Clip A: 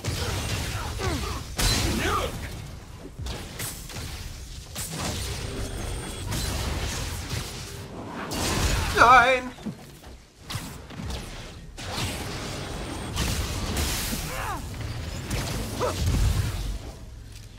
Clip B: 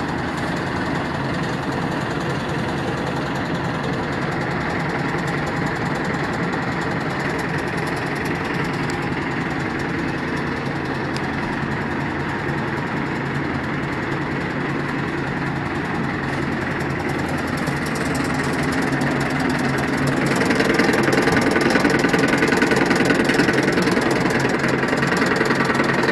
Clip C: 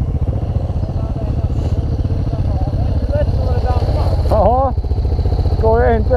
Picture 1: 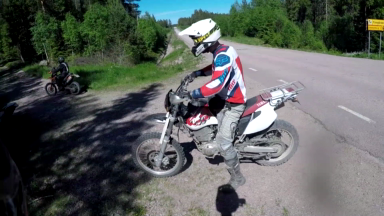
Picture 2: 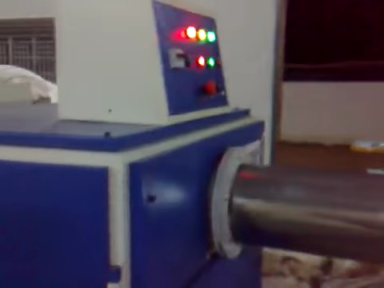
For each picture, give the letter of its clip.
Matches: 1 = C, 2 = B